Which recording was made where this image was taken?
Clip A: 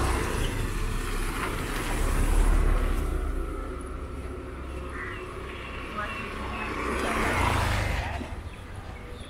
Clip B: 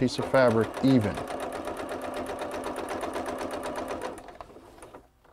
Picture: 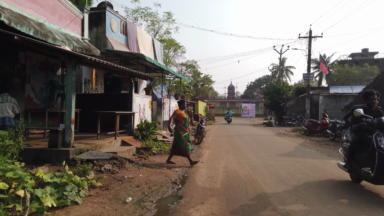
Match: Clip A